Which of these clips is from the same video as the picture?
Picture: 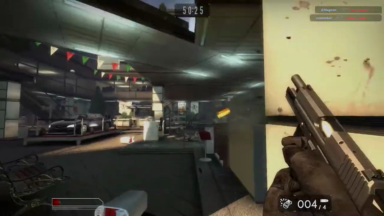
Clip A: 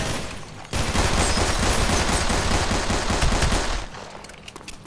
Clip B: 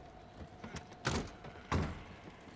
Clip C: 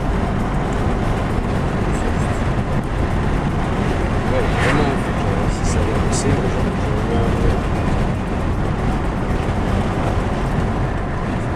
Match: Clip A